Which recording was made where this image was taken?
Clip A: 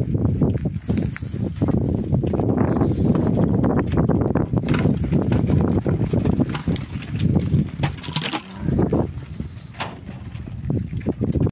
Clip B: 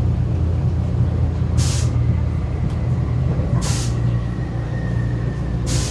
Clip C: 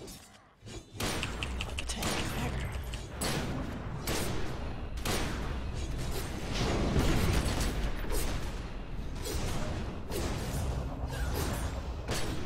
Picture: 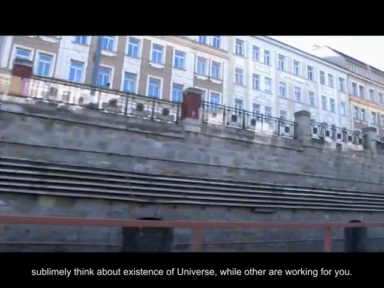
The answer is B